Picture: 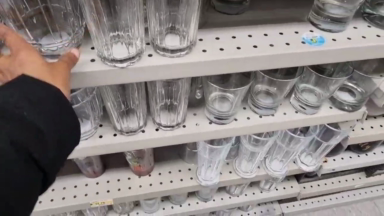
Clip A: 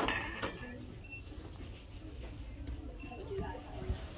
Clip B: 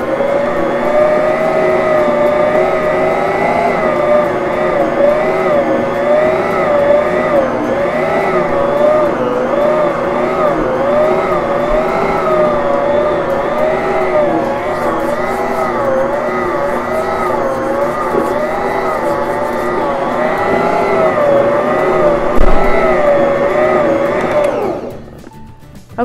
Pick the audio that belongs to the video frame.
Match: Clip A